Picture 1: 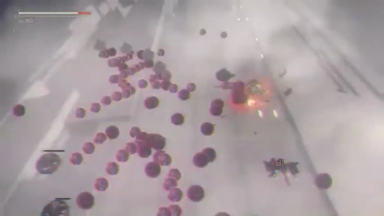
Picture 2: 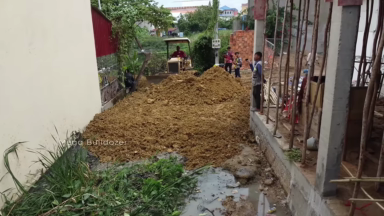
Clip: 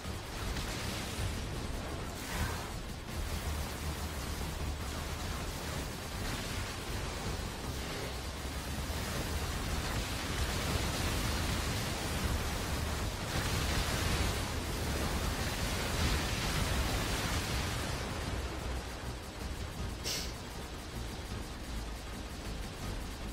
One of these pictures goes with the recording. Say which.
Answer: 1